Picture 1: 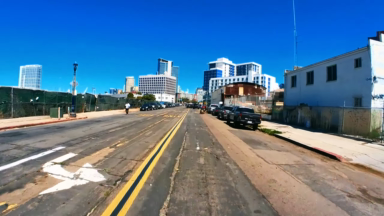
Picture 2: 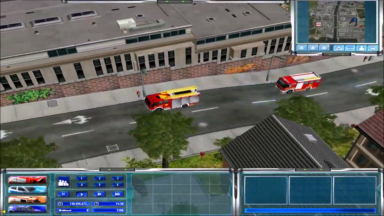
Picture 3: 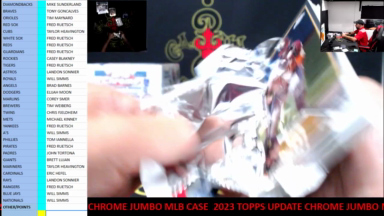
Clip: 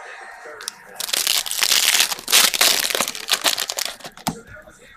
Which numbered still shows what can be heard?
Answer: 3